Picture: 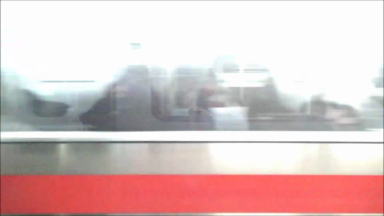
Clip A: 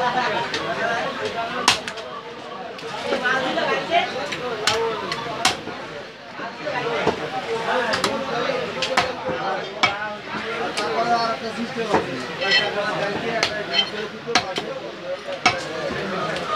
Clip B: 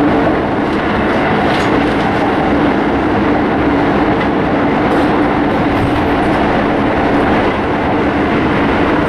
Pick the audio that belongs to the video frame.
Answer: B